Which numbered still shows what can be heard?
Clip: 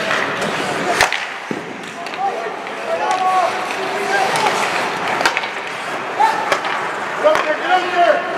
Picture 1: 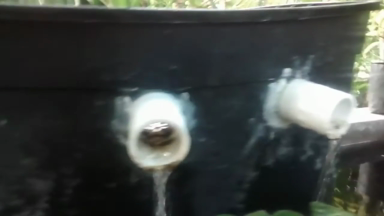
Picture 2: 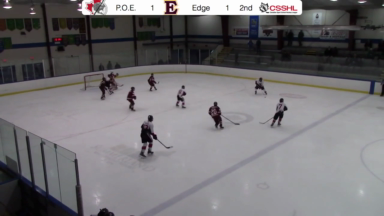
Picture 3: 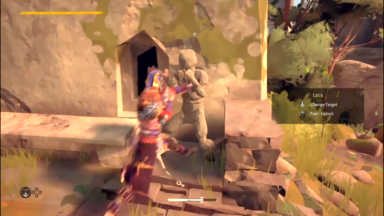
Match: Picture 2